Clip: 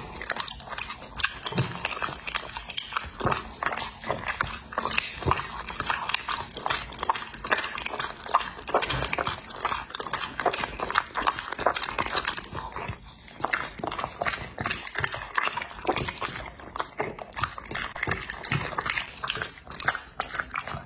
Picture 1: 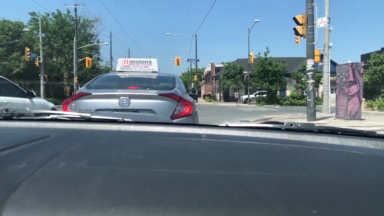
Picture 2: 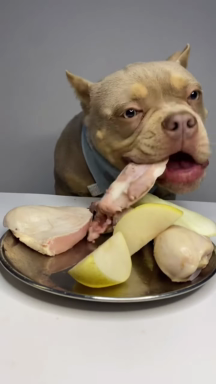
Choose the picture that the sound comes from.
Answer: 2